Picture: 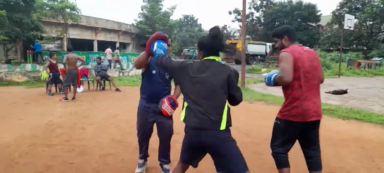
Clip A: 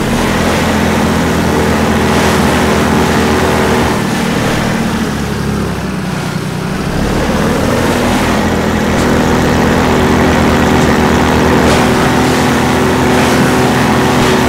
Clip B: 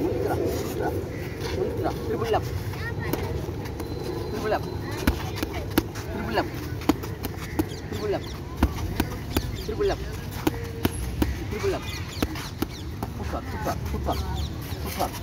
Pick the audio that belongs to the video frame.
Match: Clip B